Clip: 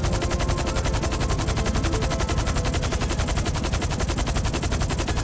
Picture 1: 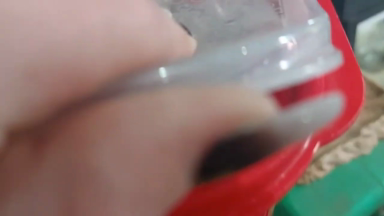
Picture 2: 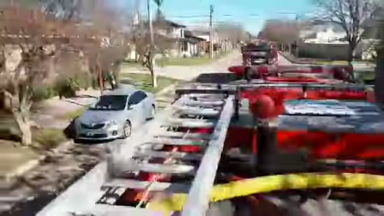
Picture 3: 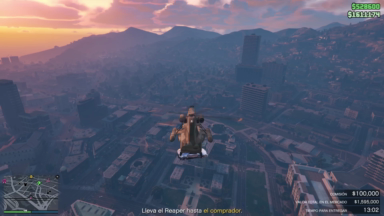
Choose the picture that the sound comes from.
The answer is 3